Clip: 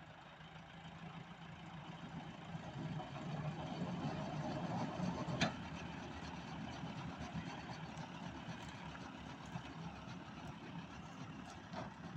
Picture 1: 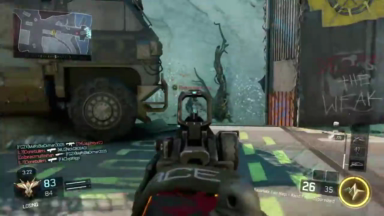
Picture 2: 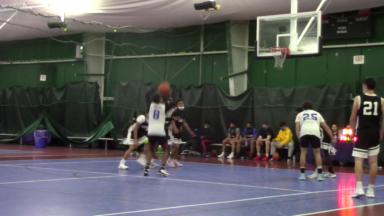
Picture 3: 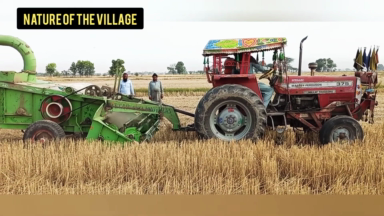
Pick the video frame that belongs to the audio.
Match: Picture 3